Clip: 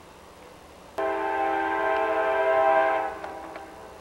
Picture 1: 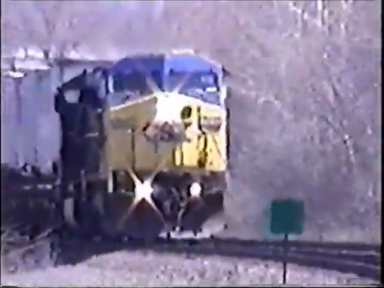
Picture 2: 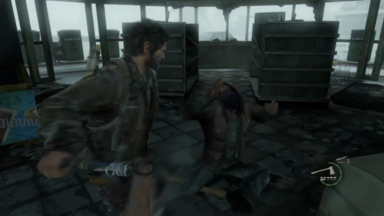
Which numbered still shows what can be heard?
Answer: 1